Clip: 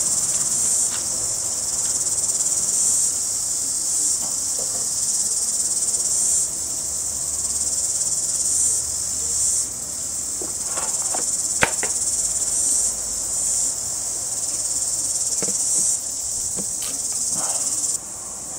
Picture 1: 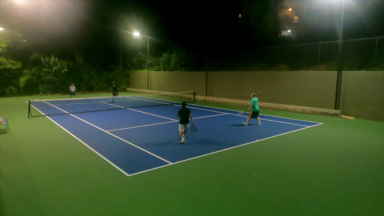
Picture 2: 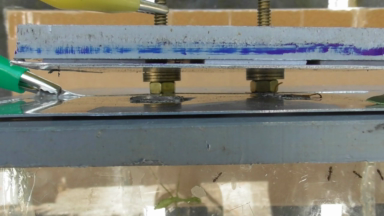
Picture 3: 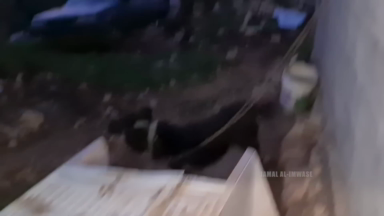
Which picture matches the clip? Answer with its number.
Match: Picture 2